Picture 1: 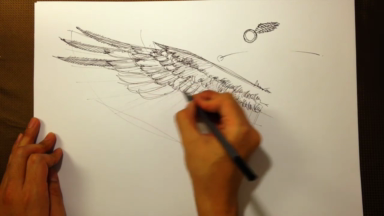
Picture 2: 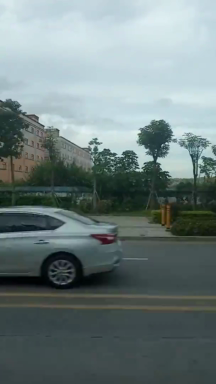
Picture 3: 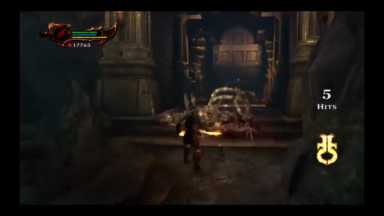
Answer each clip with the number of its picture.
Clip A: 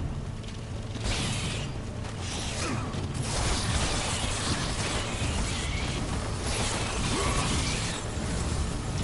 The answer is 3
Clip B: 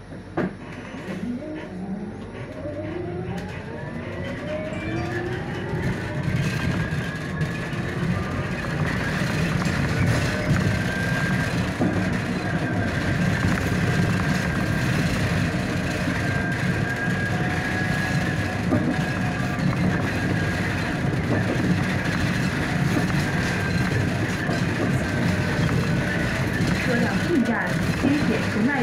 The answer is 2